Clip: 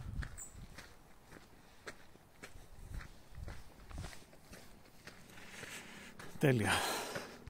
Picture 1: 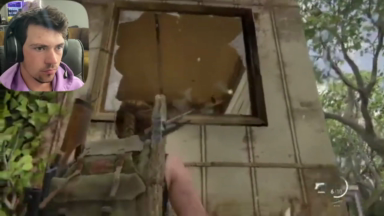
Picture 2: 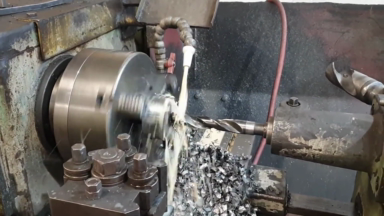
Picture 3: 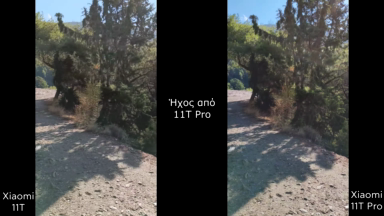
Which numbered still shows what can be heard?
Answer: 3